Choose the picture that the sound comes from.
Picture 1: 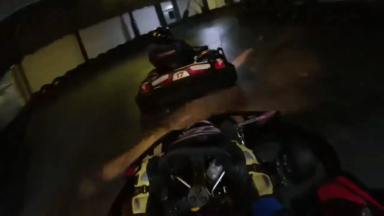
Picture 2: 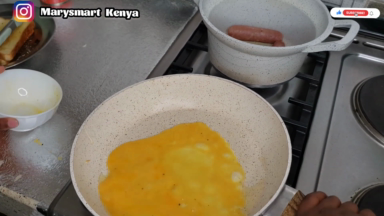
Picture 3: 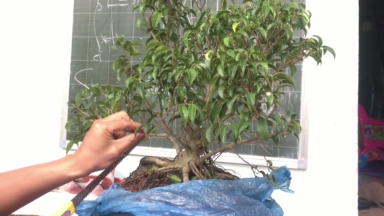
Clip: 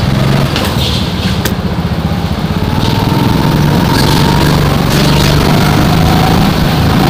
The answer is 1